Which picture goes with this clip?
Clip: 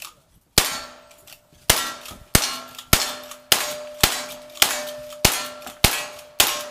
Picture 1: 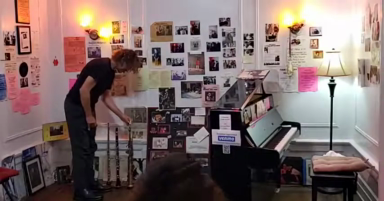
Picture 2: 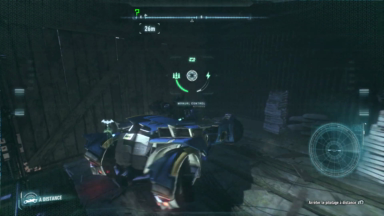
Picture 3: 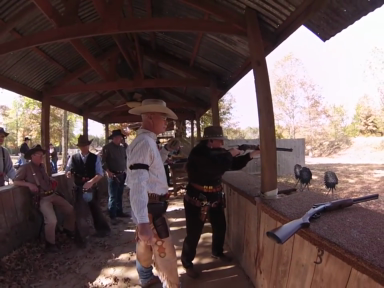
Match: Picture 3